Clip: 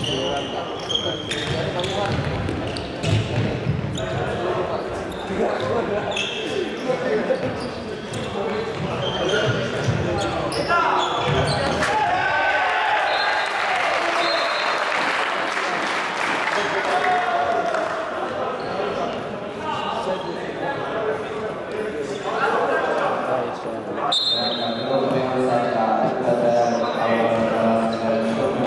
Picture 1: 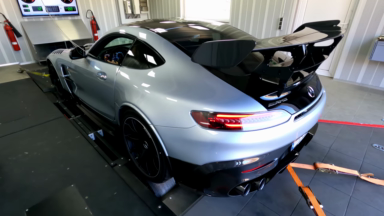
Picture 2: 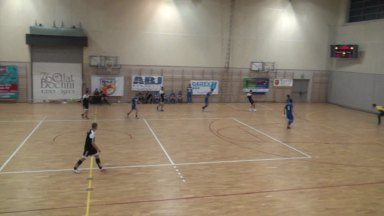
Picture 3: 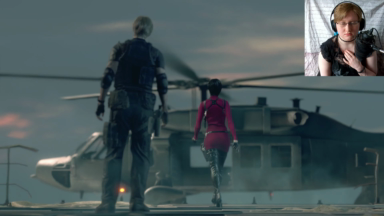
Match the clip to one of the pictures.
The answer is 2